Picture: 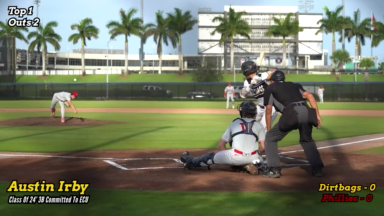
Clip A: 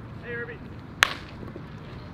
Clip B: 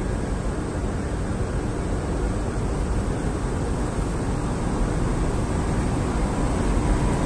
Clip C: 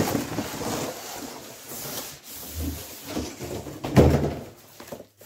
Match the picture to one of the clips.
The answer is A